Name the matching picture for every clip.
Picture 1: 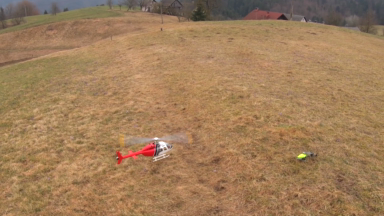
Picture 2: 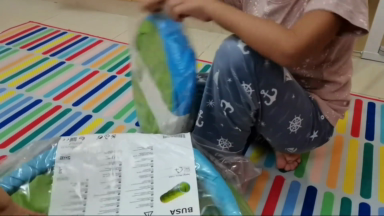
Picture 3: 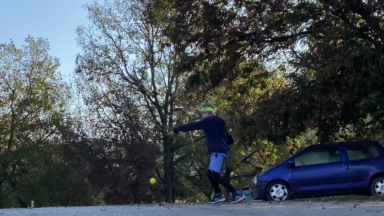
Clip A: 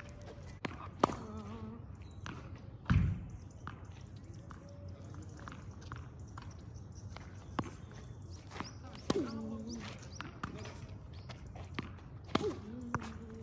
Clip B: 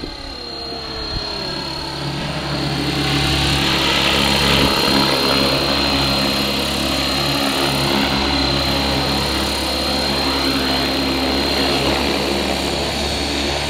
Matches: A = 3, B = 1